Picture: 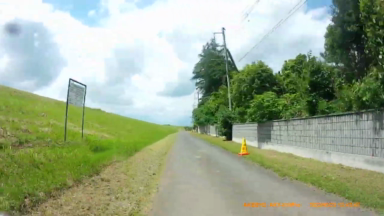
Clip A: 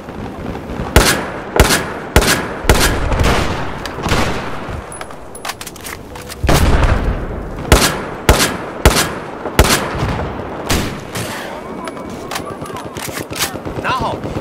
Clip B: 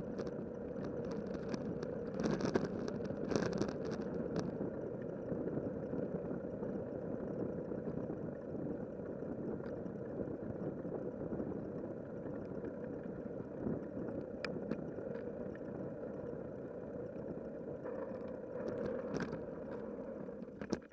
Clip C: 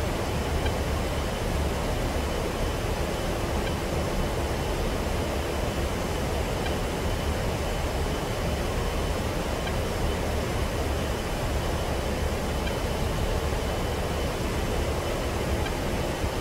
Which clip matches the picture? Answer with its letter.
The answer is B